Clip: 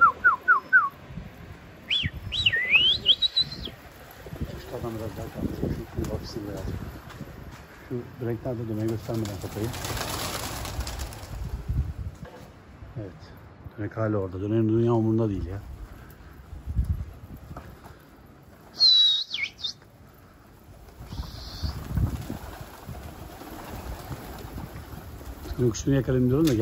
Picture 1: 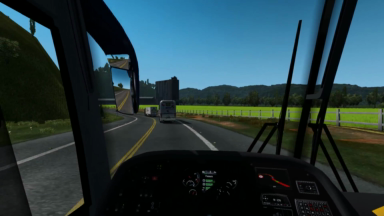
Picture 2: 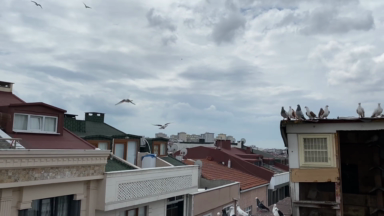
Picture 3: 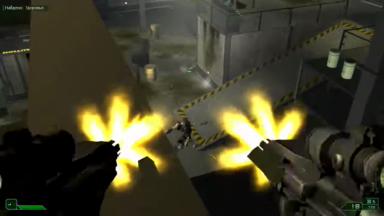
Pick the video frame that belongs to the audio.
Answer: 2